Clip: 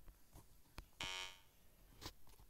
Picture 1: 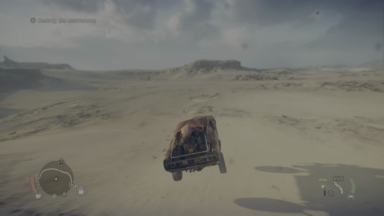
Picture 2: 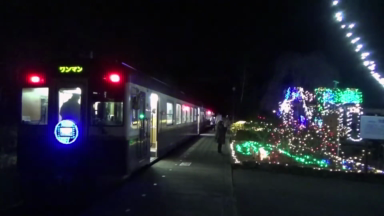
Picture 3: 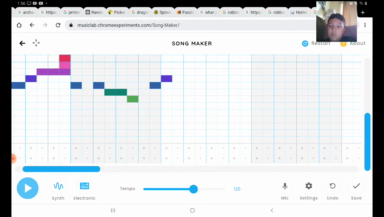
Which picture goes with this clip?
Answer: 3